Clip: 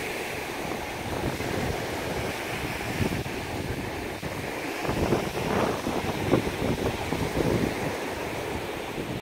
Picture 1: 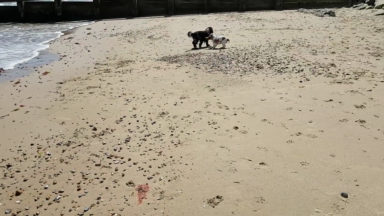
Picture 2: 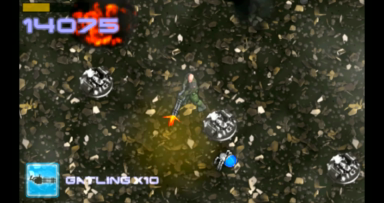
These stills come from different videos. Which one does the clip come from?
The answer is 1